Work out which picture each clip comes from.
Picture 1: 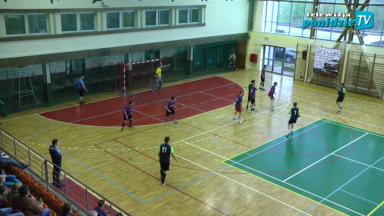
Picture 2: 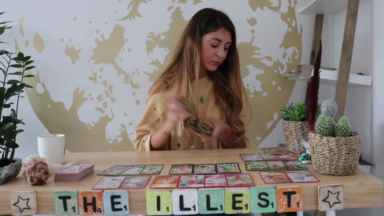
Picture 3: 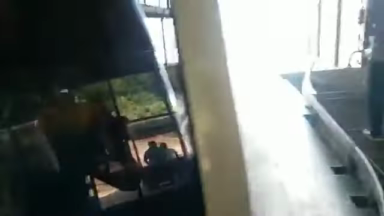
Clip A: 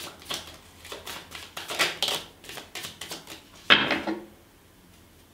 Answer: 2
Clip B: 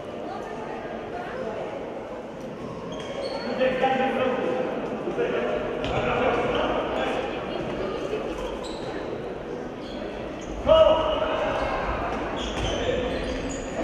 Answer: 1